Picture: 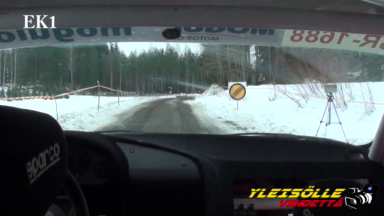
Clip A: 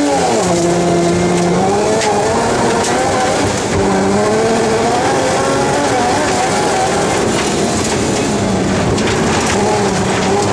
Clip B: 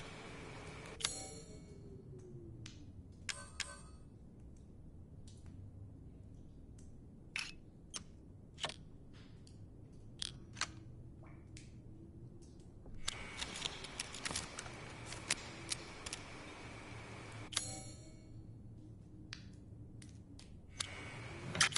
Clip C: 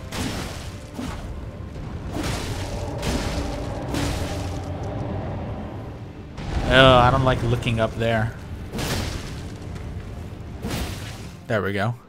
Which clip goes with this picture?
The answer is A